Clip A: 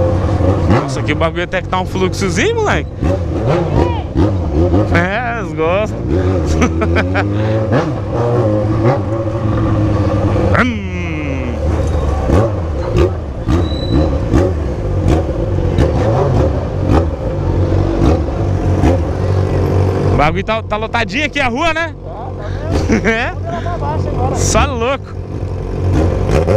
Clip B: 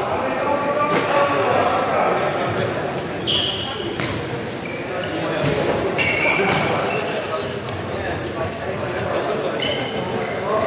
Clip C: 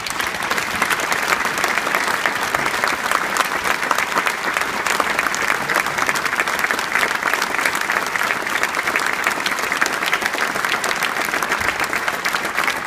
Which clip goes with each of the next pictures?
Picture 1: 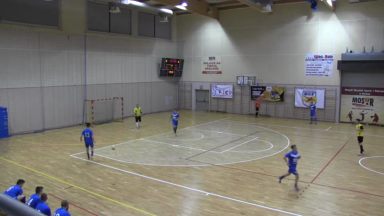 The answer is B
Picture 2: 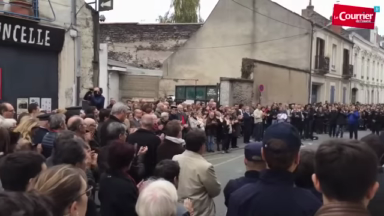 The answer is C